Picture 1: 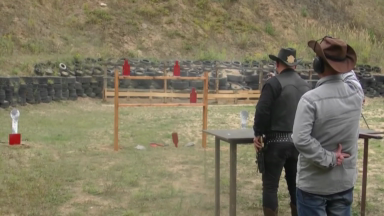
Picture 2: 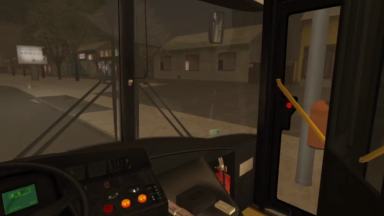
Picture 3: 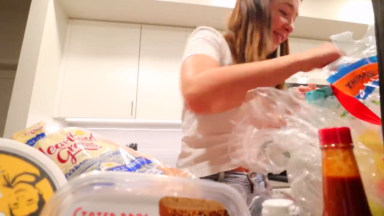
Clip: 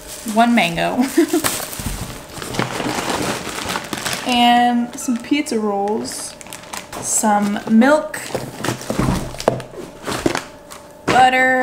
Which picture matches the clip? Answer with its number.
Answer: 3